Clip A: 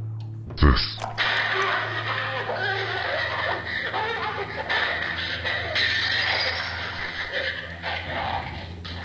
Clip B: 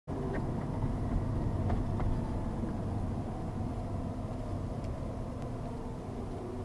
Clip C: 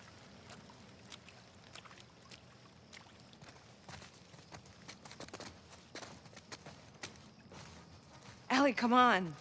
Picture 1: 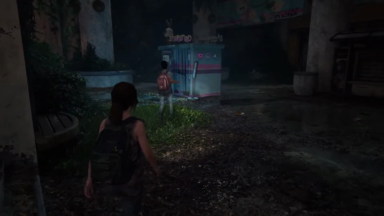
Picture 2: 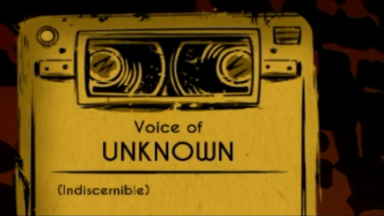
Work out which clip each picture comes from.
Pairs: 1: C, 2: A